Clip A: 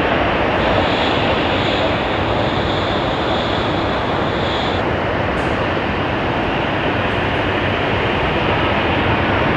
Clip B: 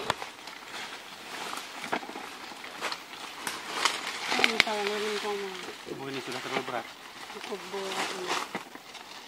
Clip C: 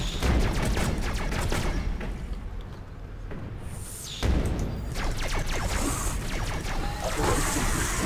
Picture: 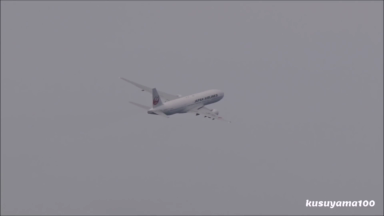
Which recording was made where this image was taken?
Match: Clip A